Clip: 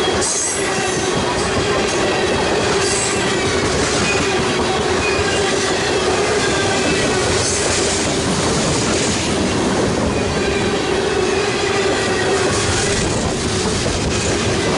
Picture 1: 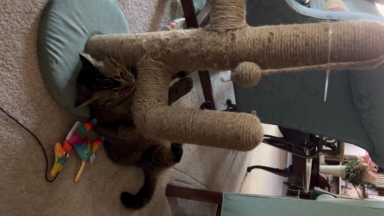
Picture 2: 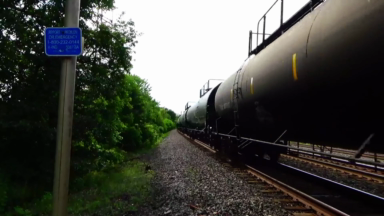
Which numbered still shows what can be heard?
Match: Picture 2